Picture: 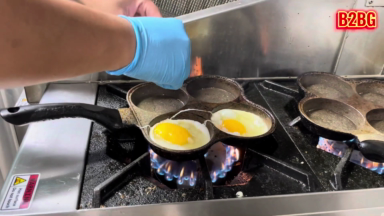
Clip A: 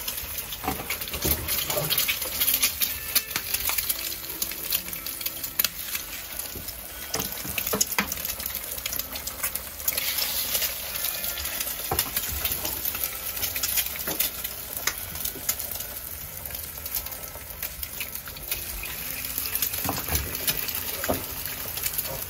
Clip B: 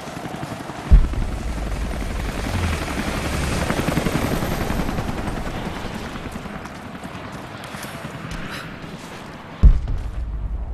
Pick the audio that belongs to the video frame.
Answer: A